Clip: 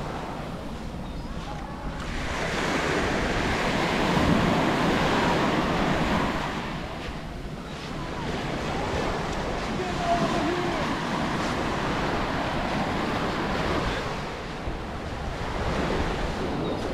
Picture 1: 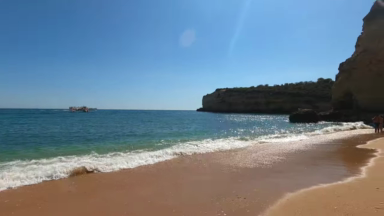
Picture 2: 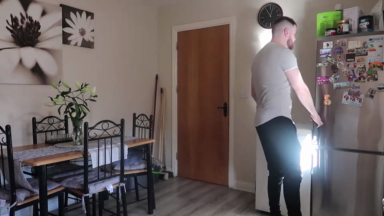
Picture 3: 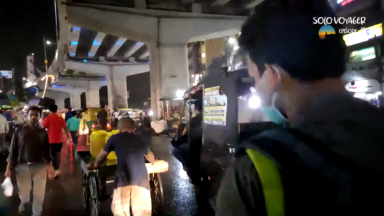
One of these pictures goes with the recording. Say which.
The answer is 1